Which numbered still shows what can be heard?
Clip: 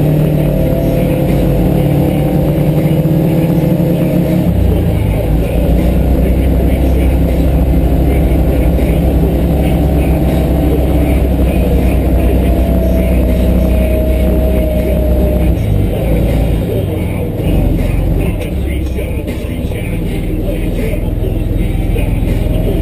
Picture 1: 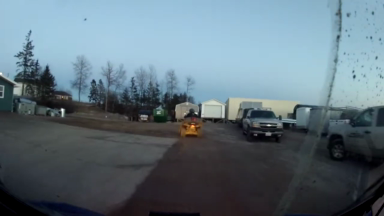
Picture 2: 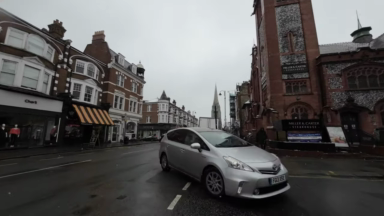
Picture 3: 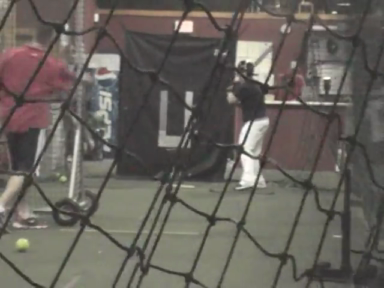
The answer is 1